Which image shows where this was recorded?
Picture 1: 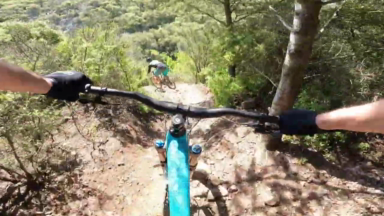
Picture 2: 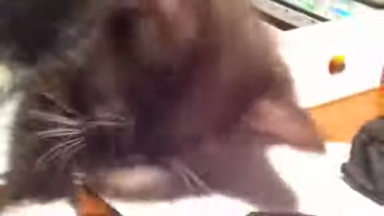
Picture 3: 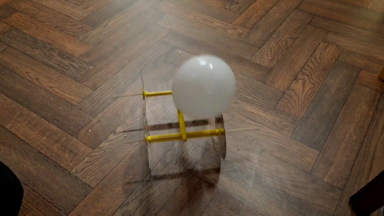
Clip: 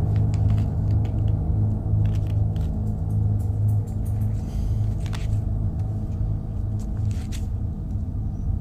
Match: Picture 2